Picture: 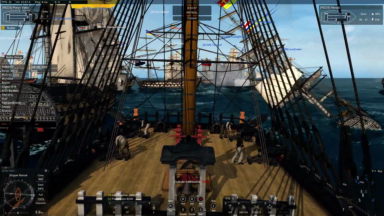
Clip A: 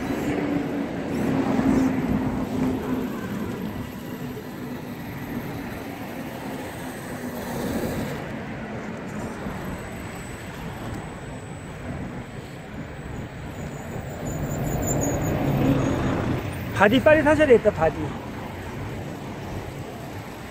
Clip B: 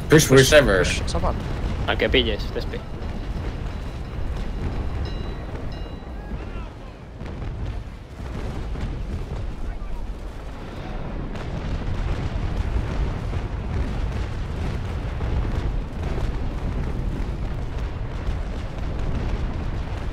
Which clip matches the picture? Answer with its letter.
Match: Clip B